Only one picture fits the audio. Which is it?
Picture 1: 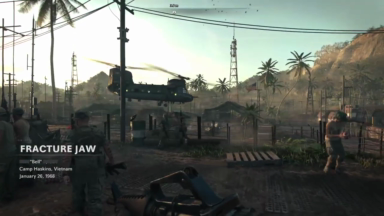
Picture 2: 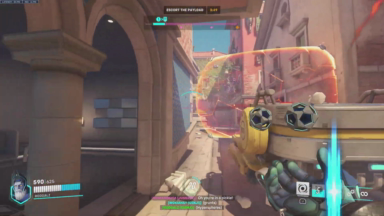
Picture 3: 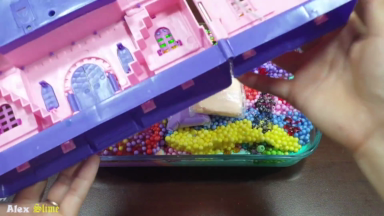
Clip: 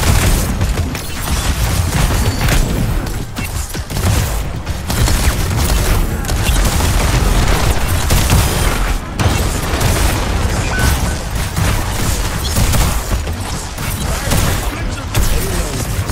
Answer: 2